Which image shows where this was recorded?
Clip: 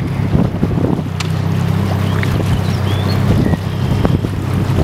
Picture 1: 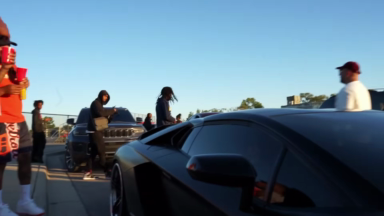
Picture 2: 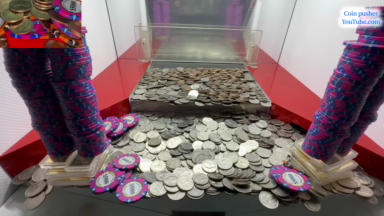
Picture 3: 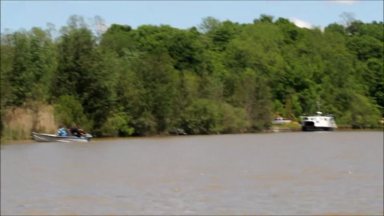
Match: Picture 3